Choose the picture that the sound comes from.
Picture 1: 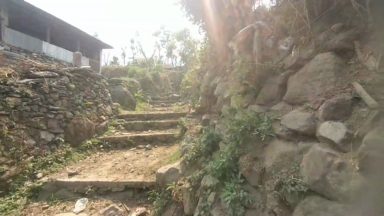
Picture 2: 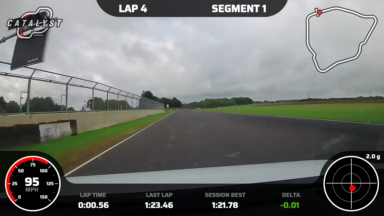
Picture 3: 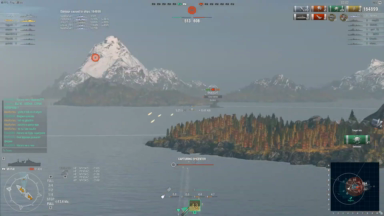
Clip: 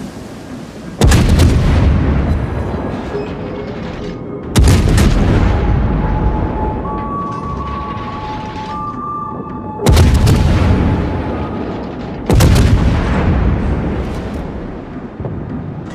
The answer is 3